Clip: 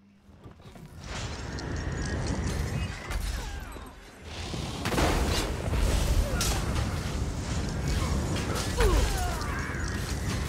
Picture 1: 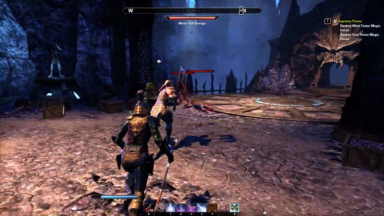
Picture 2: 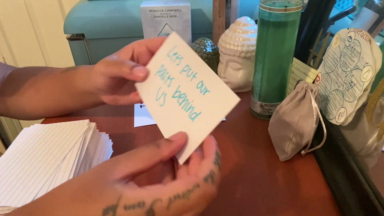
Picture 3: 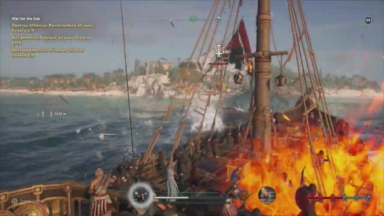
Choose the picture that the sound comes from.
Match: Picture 1